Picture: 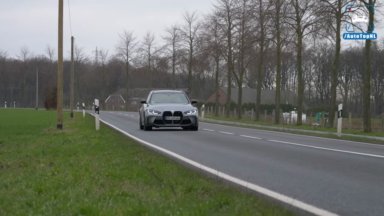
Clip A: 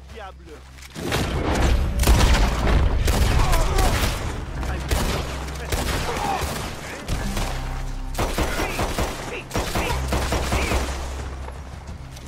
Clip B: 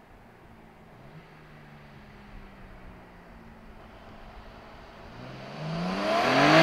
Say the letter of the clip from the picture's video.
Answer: B